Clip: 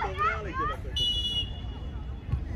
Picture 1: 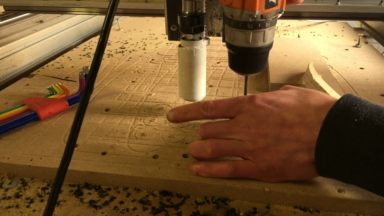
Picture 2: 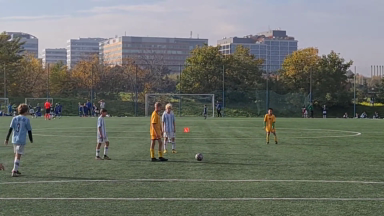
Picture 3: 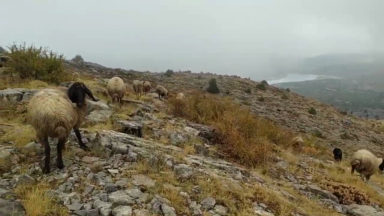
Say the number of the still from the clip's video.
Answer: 2